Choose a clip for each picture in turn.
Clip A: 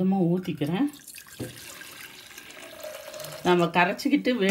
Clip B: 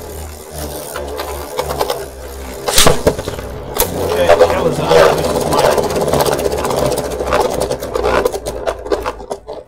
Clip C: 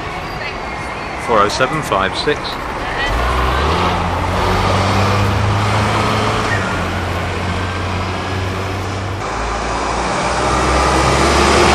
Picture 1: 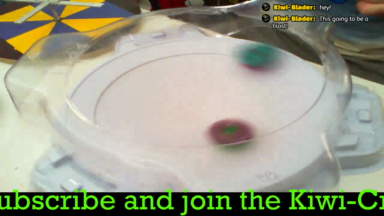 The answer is B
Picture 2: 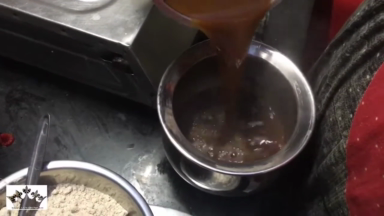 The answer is A